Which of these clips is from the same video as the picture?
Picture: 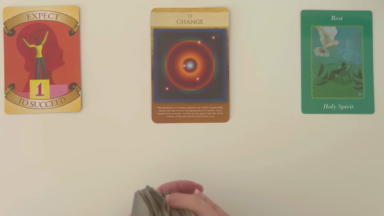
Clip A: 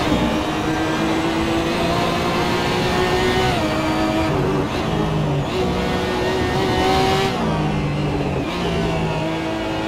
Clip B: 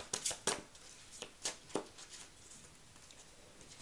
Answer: B